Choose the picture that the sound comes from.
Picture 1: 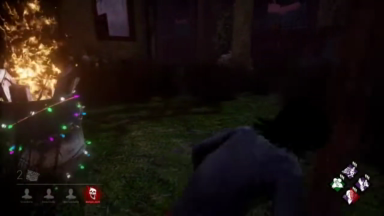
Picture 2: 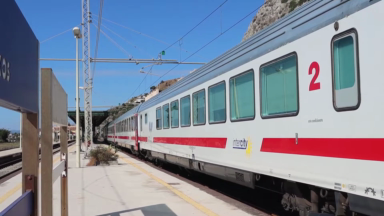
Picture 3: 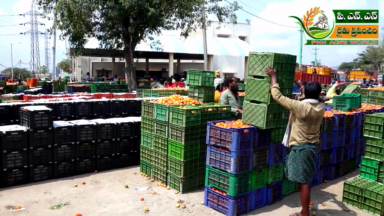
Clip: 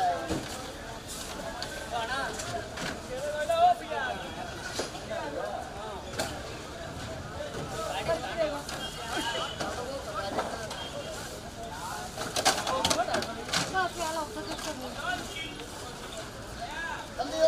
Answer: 3